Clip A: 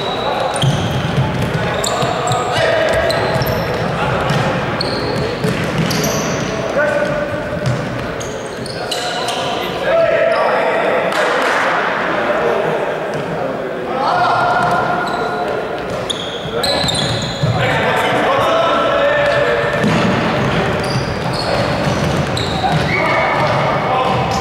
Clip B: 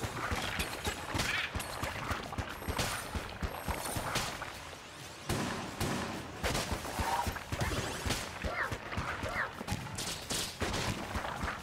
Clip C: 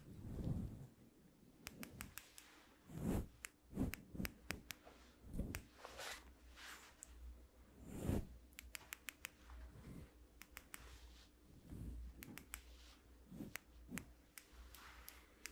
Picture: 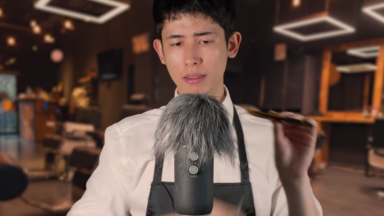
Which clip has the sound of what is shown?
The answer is C